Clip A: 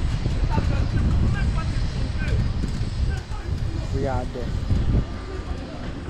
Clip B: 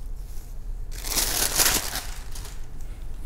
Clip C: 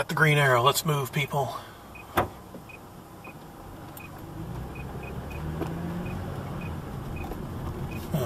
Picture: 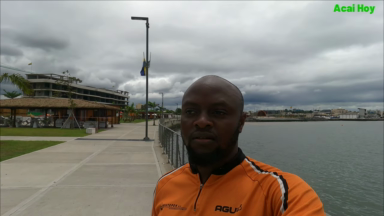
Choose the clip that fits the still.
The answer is A